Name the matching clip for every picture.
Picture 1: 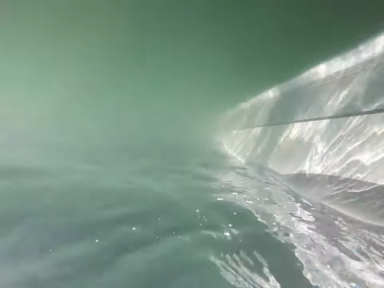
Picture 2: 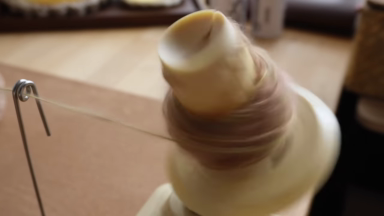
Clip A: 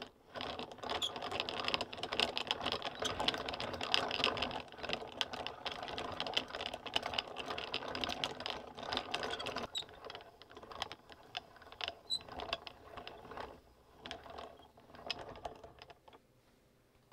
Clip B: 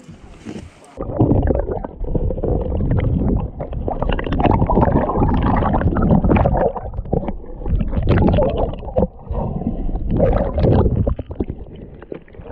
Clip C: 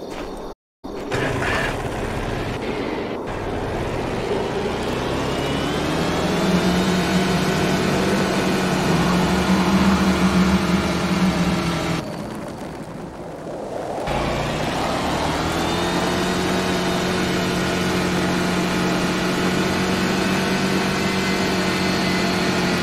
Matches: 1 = B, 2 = A